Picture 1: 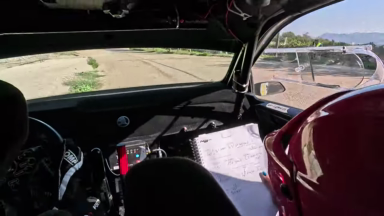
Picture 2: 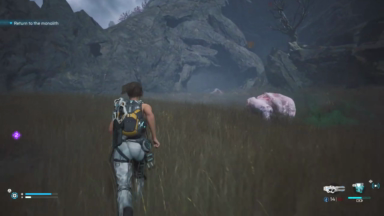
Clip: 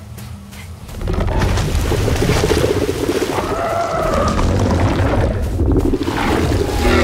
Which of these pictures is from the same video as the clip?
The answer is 2